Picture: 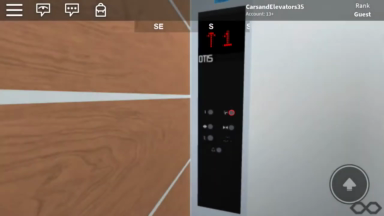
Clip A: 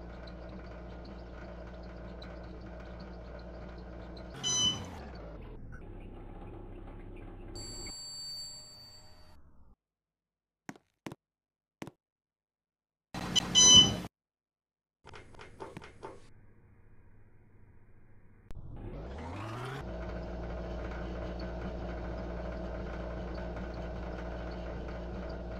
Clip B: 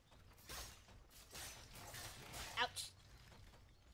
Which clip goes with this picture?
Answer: A